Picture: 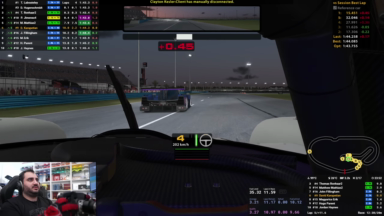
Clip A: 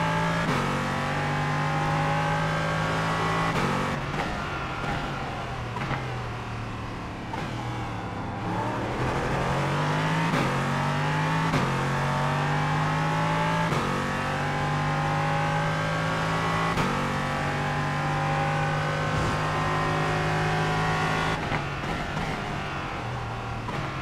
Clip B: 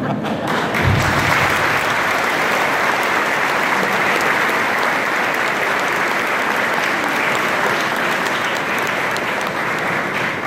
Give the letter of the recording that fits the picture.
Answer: A